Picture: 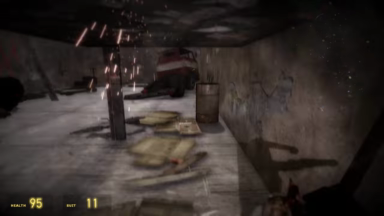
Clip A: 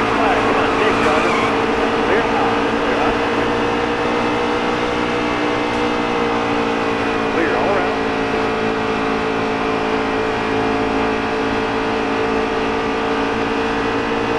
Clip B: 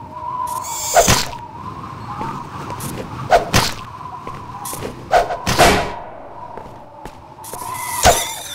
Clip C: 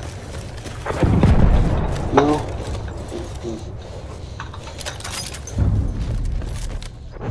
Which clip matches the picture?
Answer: B